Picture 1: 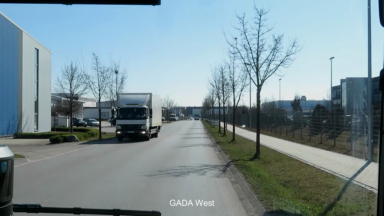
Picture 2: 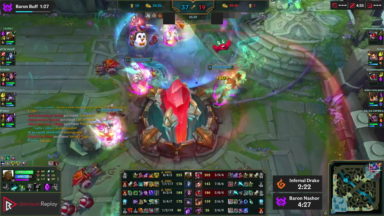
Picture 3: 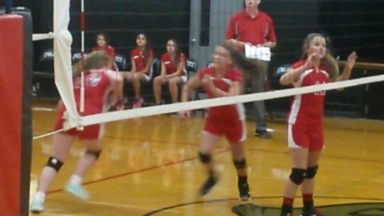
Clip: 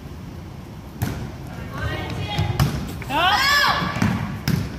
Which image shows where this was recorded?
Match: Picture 3